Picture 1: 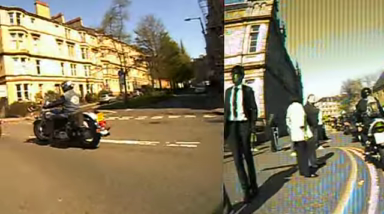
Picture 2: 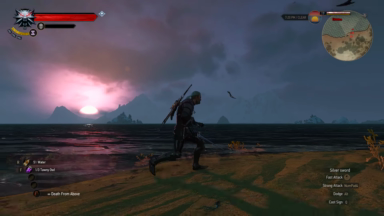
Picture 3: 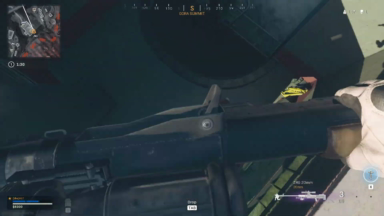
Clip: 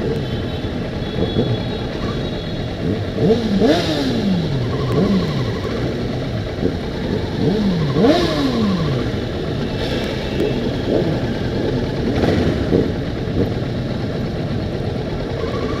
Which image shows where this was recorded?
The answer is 1